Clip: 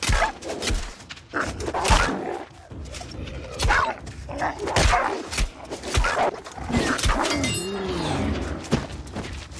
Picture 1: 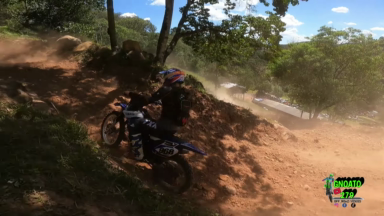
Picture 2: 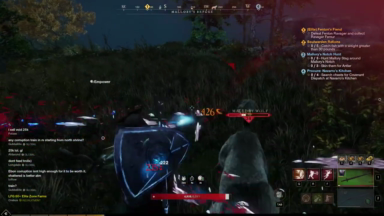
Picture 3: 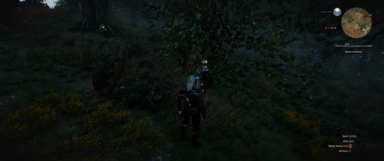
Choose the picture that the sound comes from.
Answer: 2